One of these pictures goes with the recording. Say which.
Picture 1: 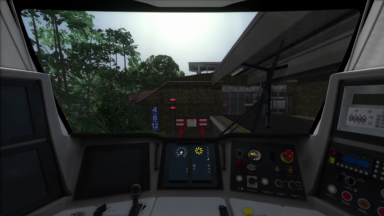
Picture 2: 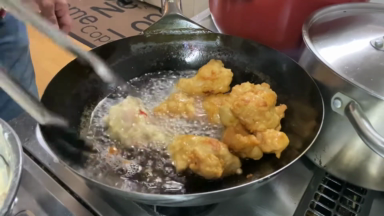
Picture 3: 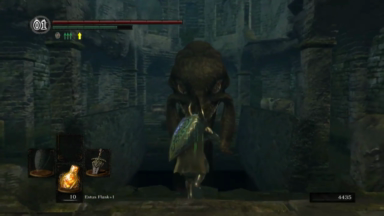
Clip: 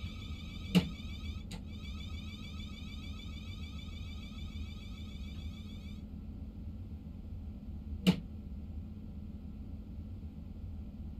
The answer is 1